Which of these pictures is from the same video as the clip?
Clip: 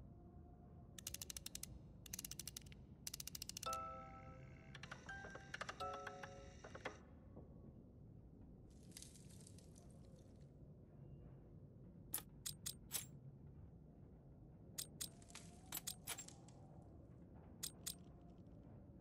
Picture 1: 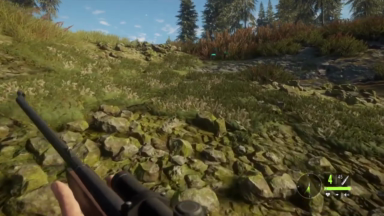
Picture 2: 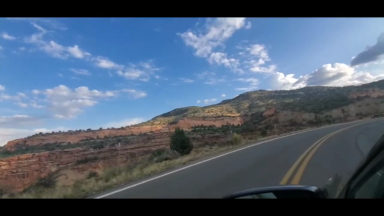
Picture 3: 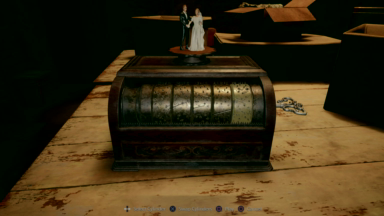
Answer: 3